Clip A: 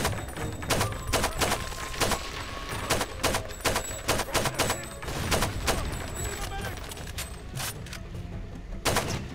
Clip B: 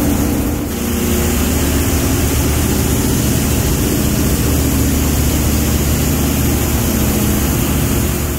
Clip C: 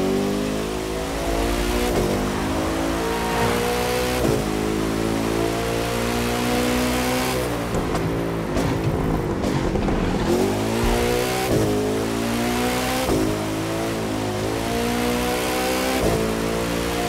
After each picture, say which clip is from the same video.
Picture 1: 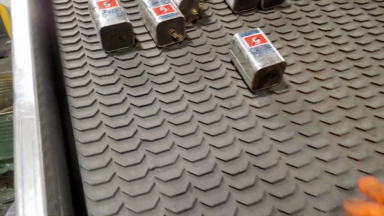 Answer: B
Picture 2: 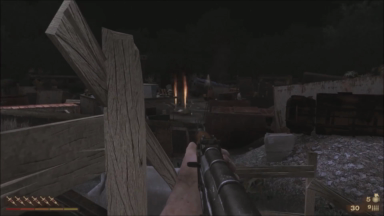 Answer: A